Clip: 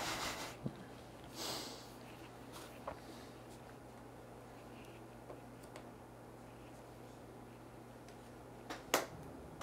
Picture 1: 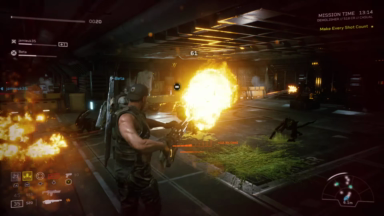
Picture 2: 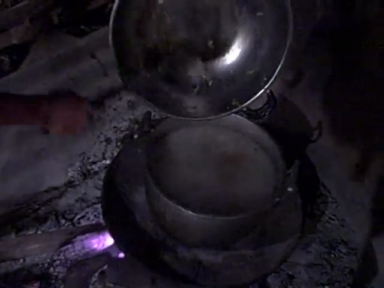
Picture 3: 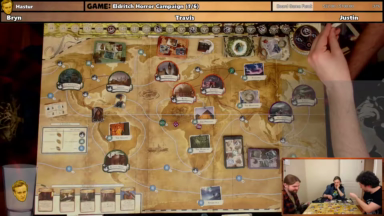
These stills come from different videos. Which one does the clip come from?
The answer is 3